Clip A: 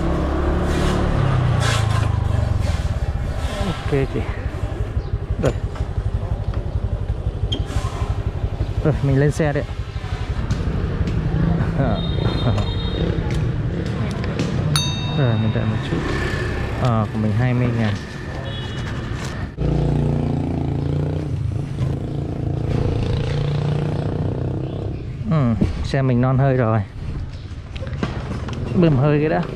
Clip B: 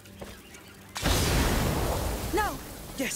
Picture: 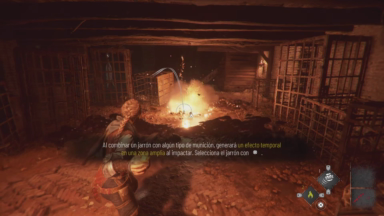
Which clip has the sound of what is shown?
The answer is B